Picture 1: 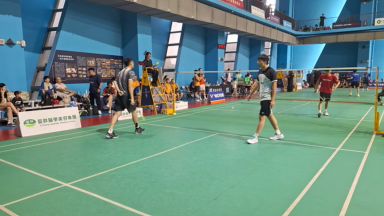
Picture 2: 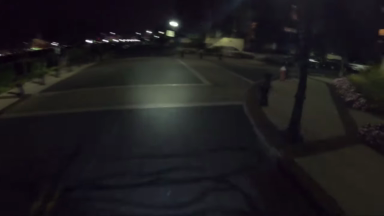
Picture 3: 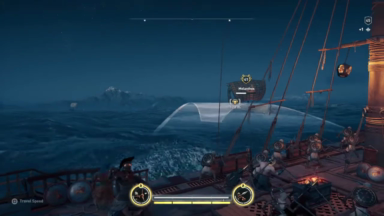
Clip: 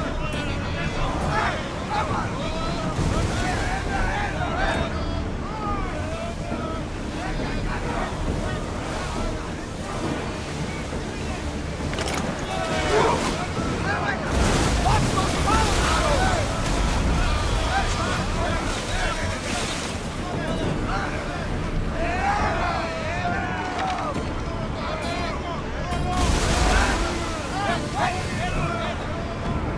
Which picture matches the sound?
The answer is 3